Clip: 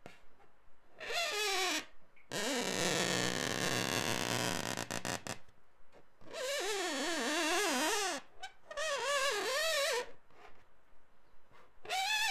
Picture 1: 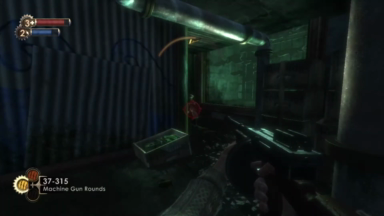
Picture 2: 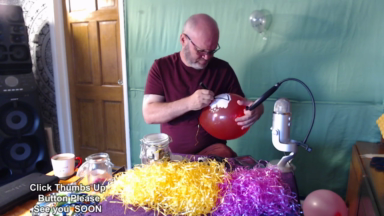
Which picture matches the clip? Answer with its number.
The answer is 2